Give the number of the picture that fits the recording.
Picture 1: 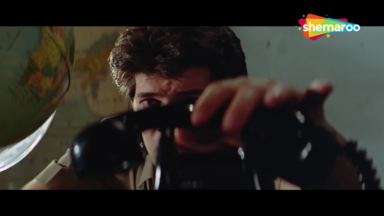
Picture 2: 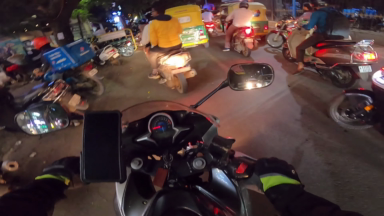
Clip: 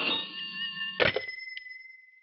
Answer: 1